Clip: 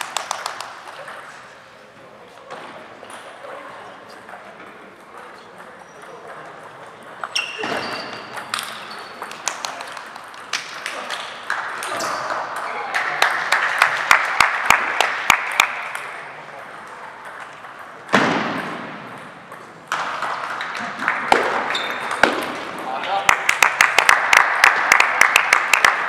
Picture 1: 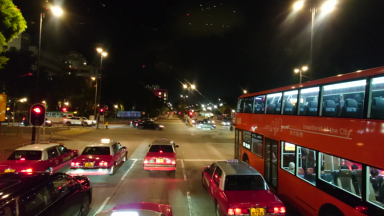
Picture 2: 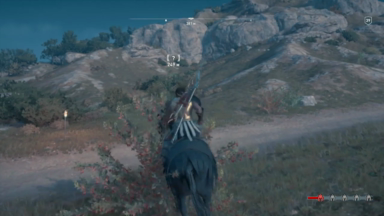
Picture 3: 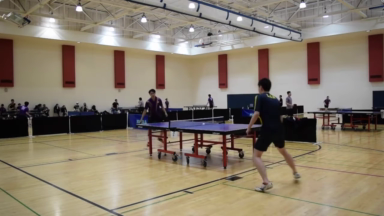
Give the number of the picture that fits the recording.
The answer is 3